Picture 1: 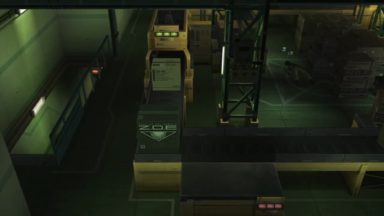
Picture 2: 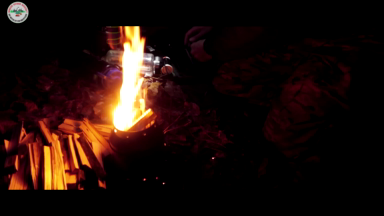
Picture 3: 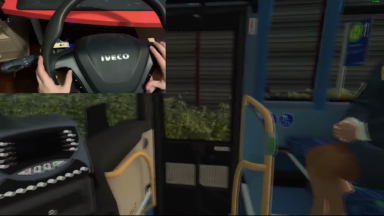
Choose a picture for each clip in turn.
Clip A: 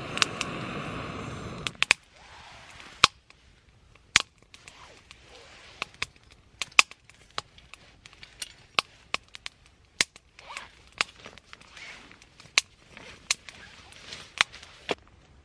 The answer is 2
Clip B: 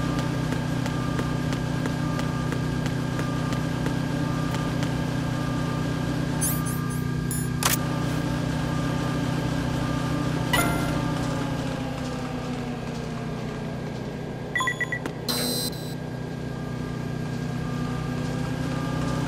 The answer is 1